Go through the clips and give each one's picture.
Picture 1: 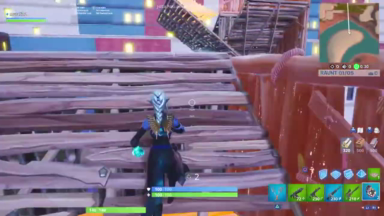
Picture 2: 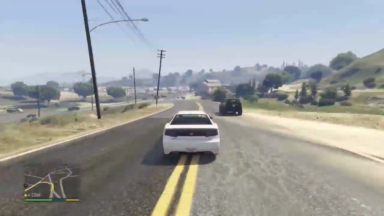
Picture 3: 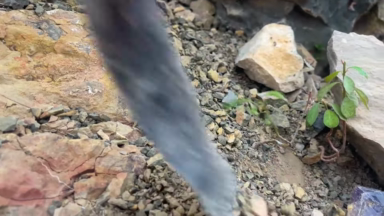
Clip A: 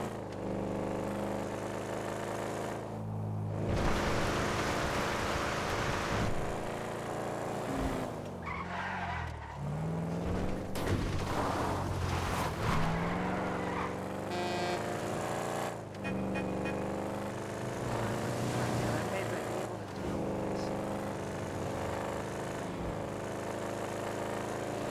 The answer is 2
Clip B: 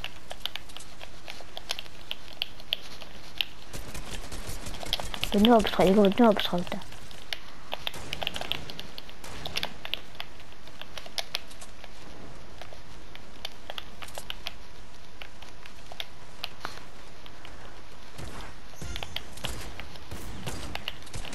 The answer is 1